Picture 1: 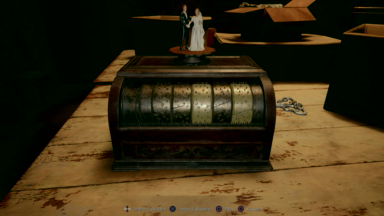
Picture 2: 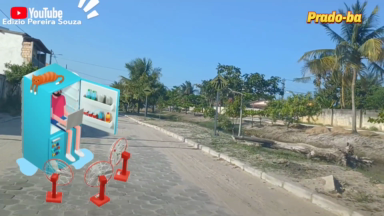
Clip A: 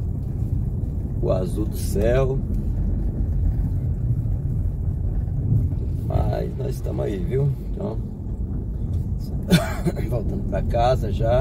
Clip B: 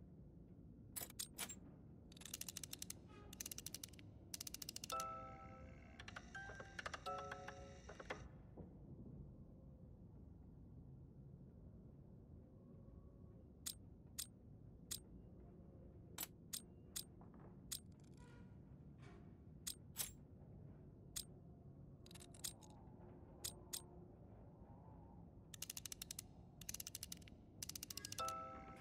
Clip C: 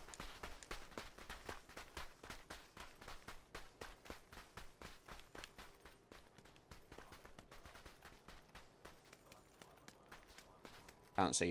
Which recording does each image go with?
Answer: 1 B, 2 A